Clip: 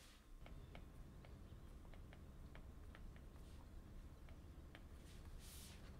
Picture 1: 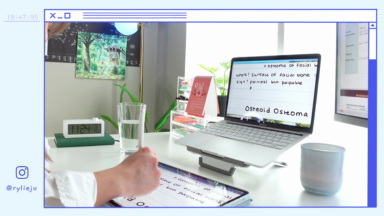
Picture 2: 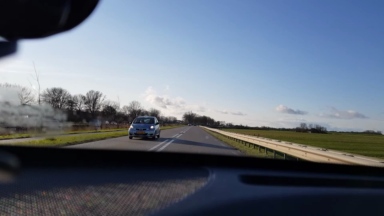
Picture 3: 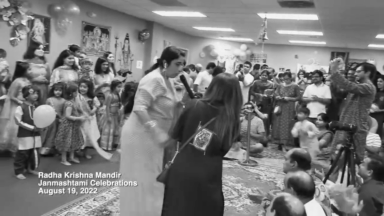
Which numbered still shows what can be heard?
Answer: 1